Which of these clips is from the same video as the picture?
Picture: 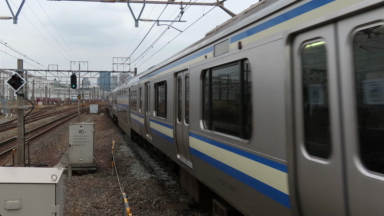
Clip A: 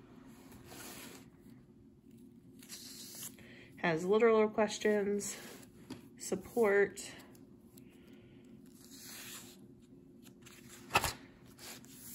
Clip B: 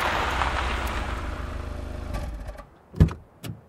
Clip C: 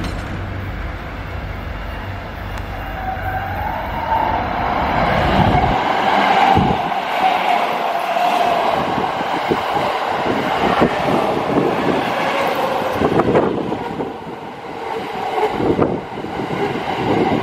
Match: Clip C